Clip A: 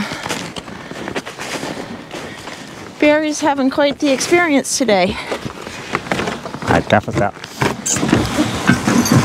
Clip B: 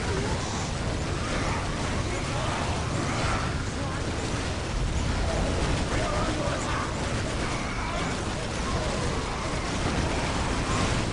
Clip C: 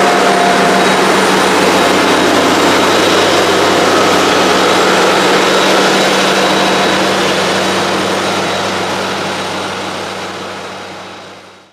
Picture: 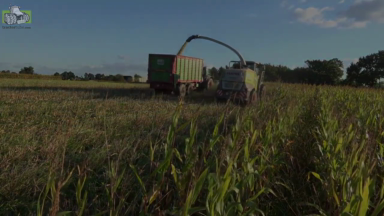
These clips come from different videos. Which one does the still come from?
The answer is C